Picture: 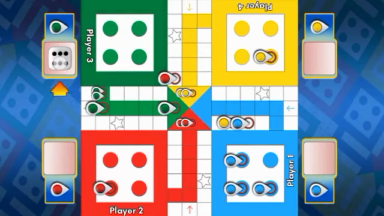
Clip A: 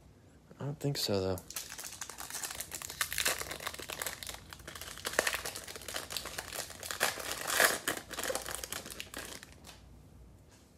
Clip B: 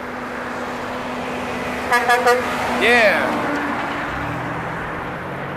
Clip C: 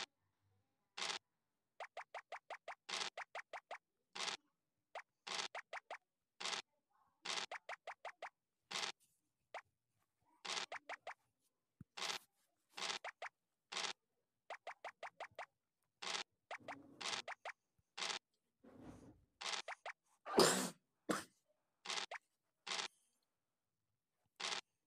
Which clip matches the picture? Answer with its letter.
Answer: C